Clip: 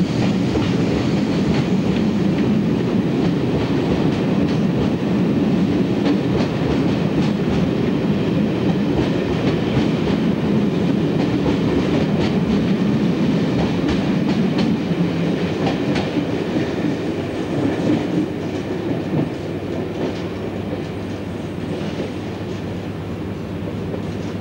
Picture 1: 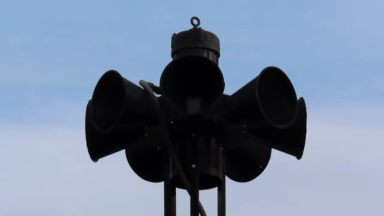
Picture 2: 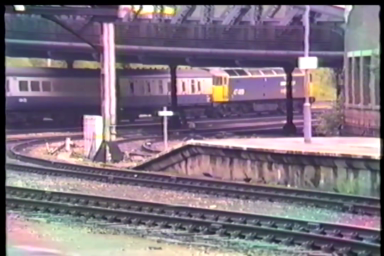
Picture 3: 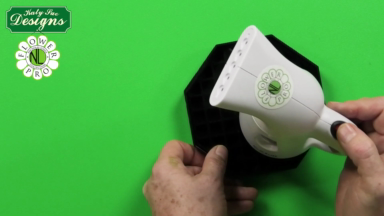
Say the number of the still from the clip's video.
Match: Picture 2